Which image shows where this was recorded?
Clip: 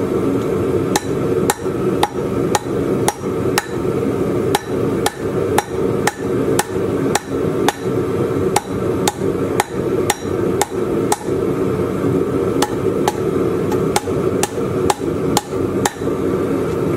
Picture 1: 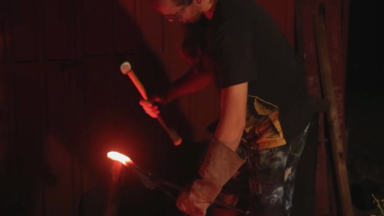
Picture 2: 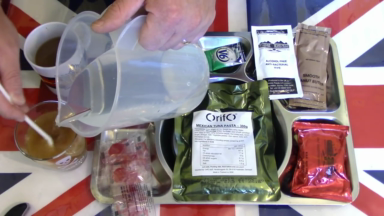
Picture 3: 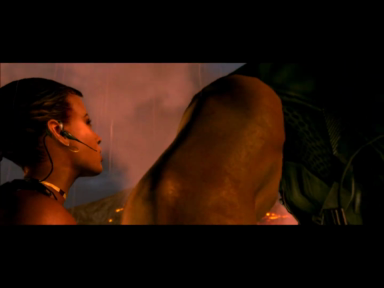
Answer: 1